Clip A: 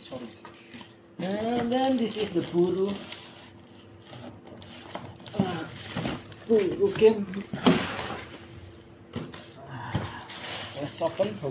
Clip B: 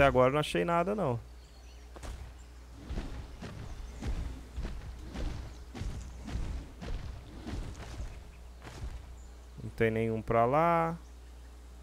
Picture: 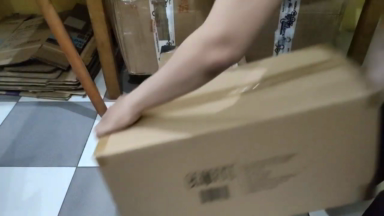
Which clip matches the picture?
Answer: A